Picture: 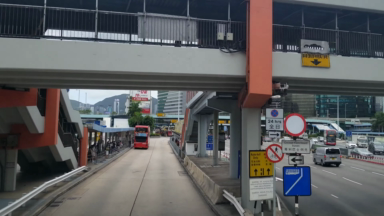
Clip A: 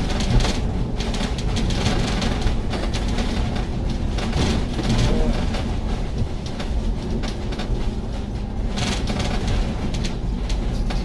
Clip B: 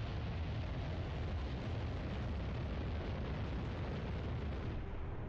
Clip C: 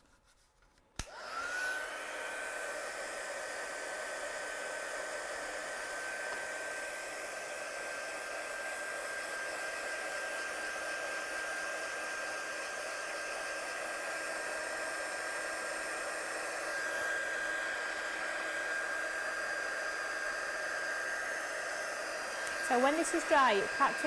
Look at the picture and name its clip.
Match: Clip A